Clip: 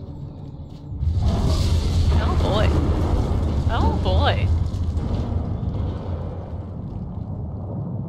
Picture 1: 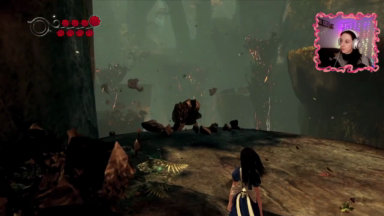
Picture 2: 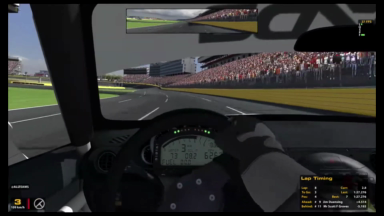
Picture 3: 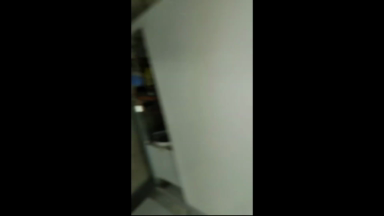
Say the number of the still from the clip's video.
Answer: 1